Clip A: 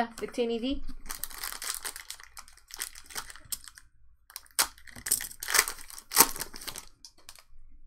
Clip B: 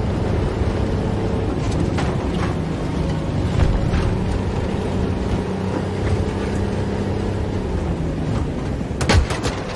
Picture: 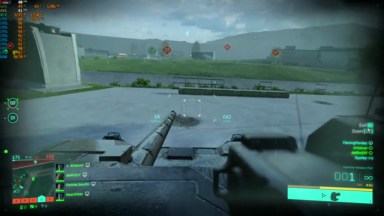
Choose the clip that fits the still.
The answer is B